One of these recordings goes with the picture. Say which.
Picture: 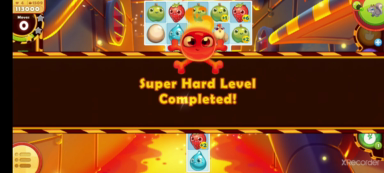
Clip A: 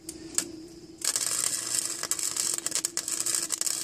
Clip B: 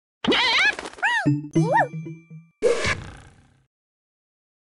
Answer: B